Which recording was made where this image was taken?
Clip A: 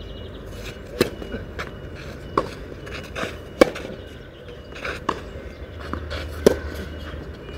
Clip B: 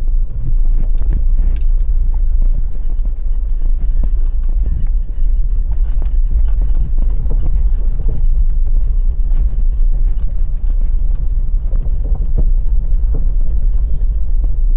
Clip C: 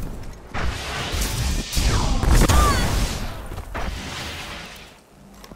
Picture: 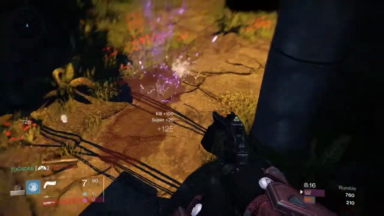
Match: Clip C